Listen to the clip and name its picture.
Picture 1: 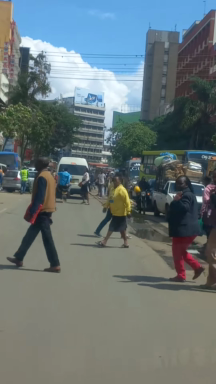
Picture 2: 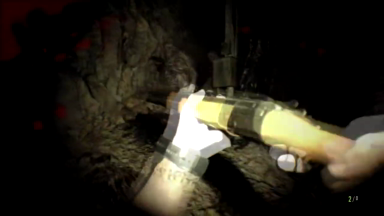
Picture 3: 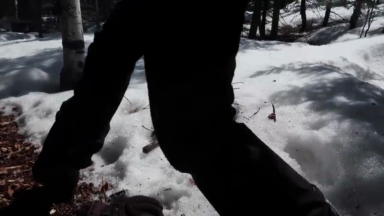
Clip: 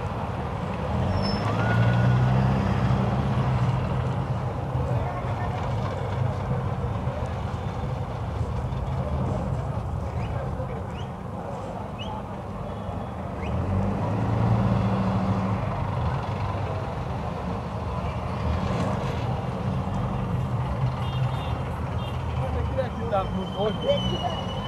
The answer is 1